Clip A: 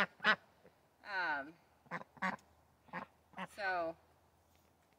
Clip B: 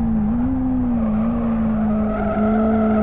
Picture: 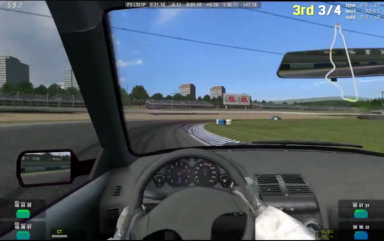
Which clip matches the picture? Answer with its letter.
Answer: B